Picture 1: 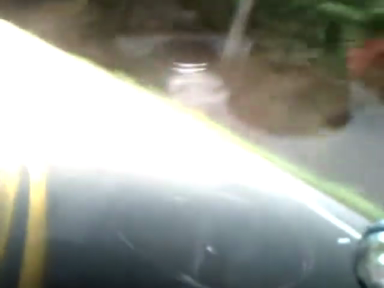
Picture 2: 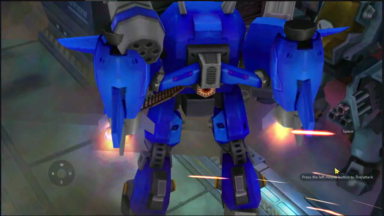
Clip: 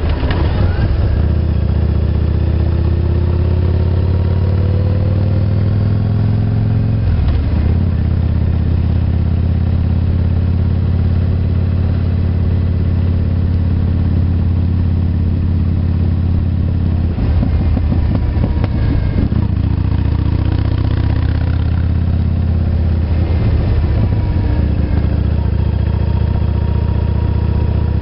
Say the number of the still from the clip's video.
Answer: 1